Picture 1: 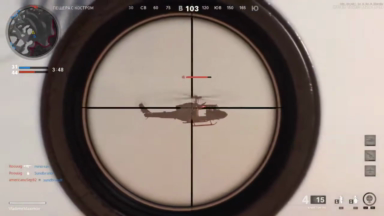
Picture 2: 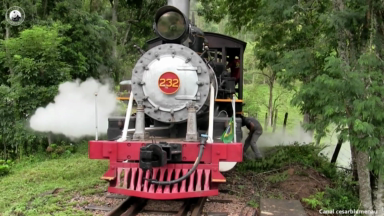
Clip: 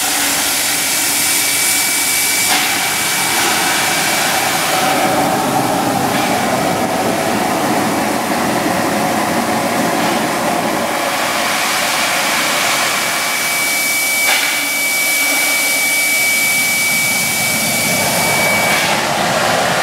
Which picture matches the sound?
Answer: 2